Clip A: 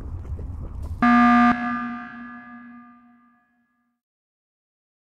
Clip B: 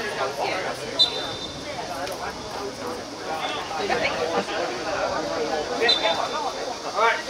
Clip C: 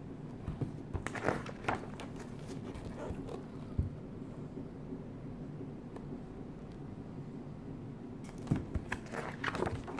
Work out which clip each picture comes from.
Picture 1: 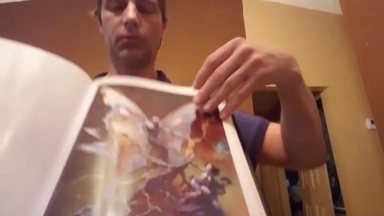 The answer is C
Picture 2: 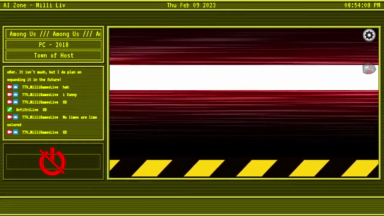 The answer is A